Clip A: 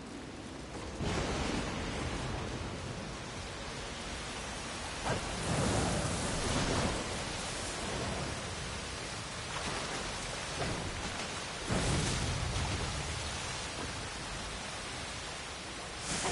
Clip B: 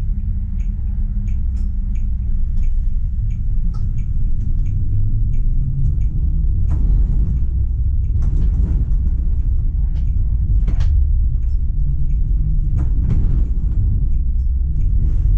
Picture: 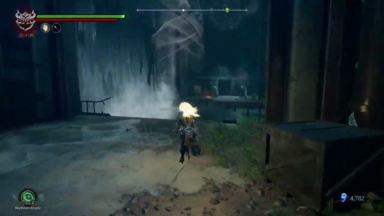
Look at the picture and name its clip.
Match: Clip A